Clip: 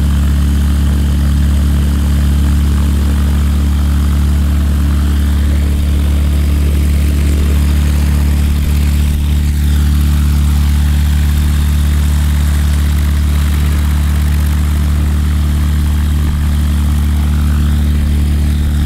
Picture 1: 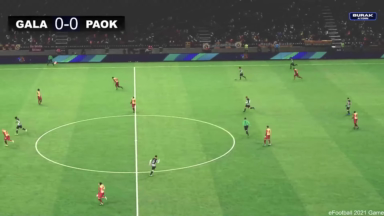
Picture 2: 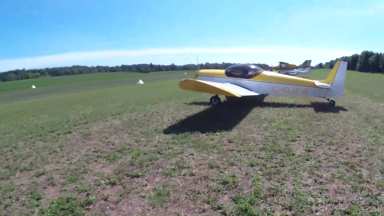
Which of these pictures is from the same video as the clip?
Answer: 2